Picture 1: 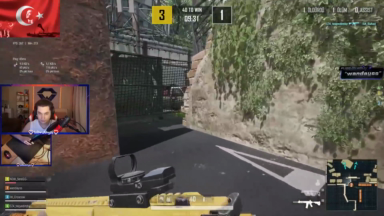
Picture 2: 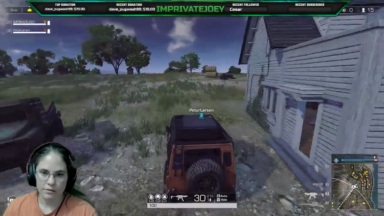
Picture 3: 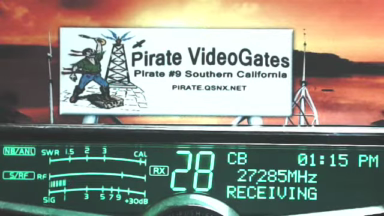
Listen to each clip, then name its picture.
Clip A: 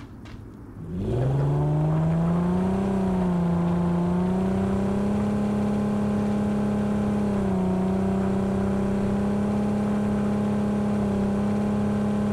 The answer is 2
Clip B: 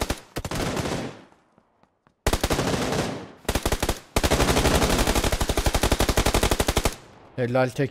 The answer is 1